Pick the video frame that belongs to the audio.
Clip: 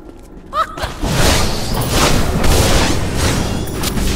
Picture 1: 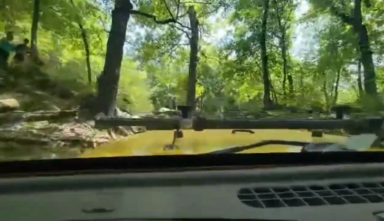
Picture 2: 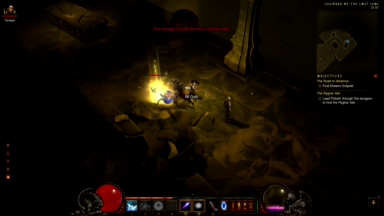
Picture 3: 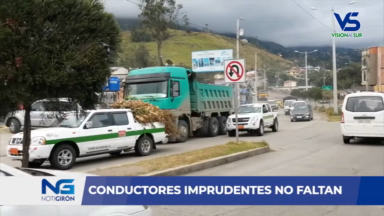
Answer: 2